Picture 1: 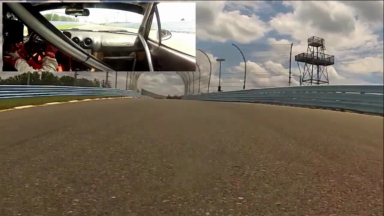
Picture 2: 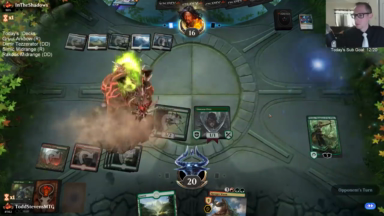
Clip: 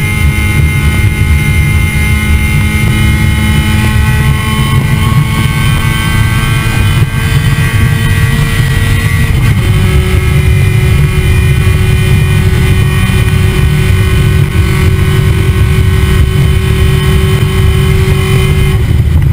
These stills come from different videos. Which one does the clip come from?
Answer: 1